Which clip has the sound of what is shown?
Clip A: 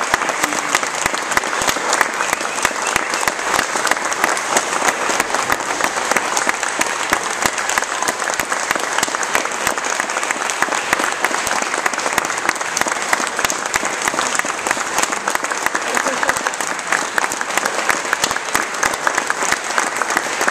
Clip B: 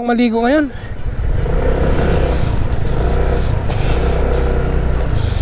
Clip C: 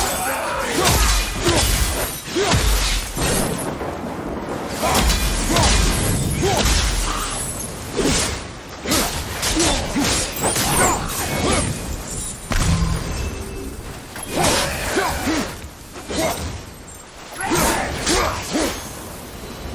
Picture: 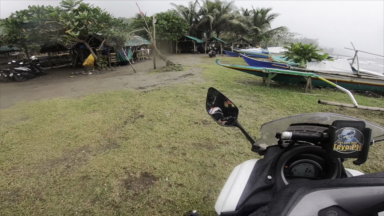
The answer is B